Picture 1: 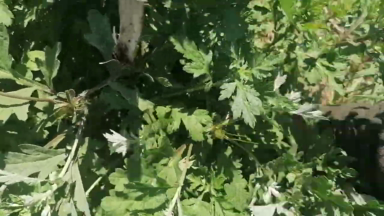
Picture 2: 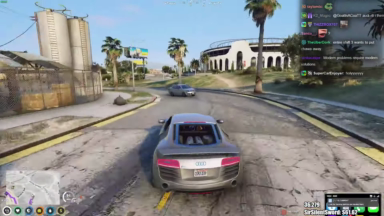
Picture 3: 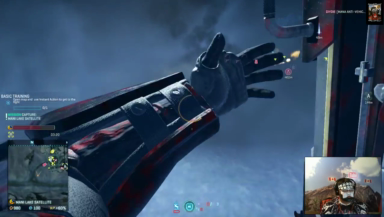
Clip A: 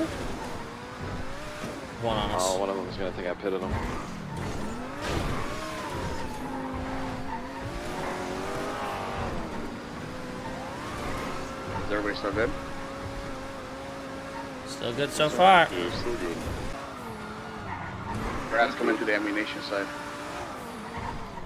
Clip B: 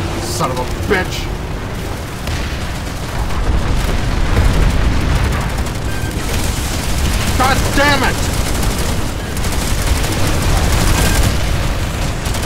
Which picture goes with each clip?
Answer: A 2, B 3